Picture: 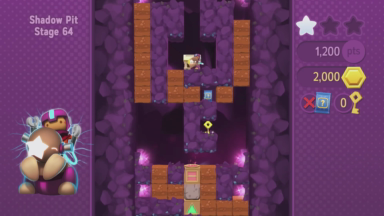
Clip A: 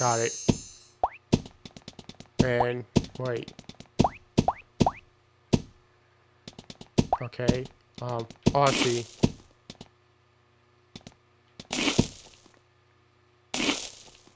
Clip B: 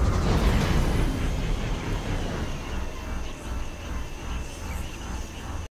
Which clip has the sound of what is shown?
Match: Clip A